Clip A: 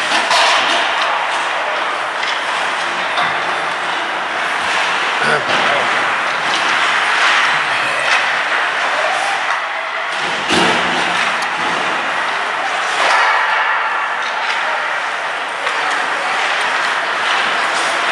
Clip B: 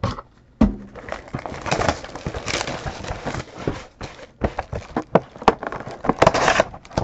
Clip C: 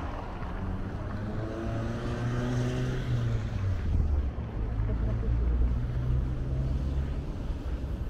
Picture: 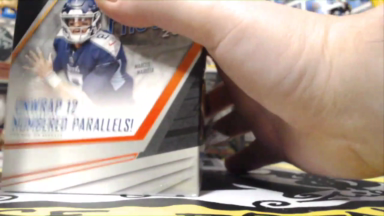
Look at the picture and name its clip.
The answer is B